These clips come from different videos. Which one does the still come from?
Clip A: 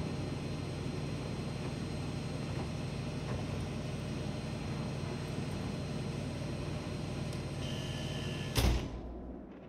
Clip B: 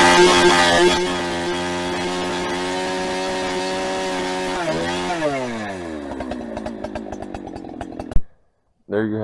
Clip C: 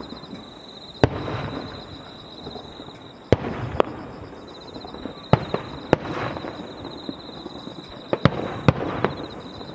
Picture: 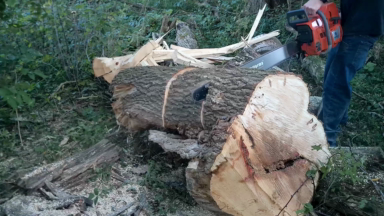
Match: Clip B